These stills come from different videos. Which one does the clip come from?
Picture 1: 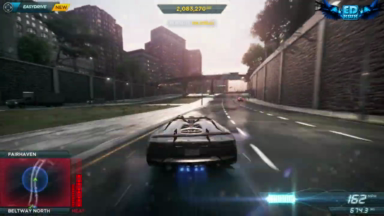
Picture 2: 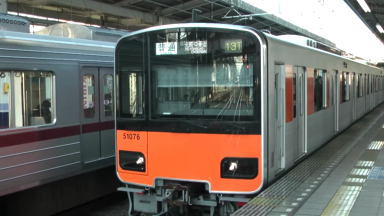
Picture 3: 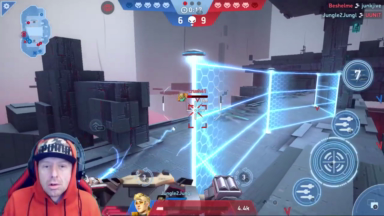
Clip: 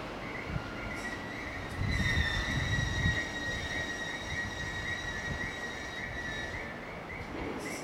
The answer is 2